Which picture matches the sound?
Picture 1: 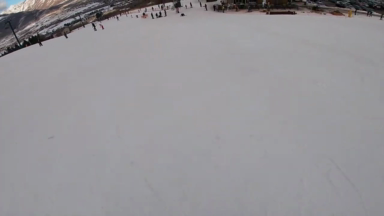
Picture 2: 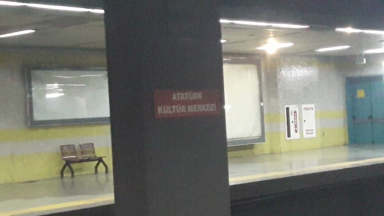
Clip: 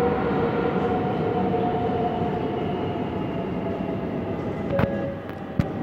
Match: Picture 2